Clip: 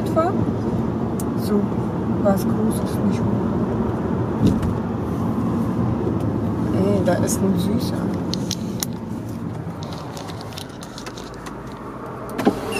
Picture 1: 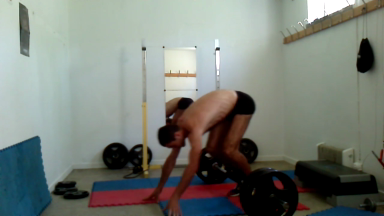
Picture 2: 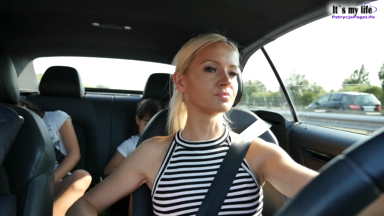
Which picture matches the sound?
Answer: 2